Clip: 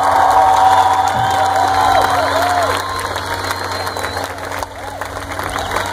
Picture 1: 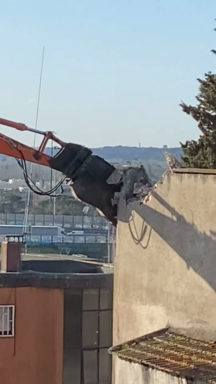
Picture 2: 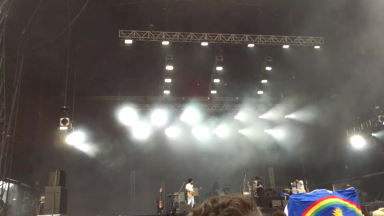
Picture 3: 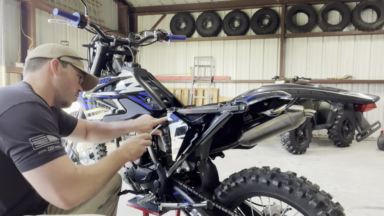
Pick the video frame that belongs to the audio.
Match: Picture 2